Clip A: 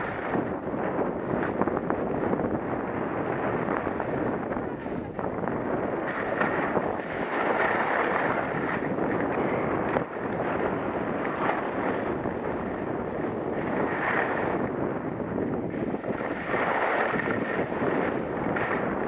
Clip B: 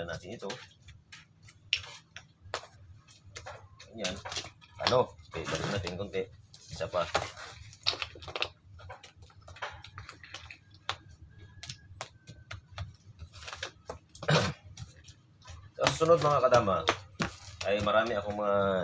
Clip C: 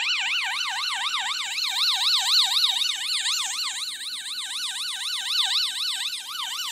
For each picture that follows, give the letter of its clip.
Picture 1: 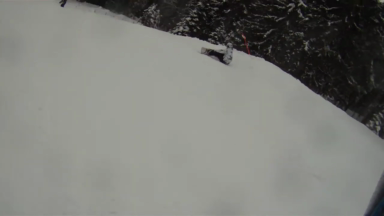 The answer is A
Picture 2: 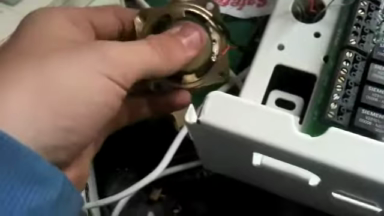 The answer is C